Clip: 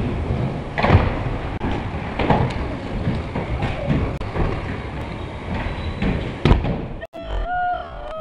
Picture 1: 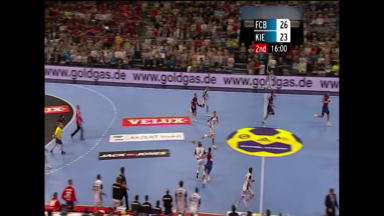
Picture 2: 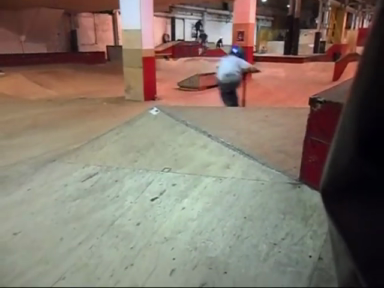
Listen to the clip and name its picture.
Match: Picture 2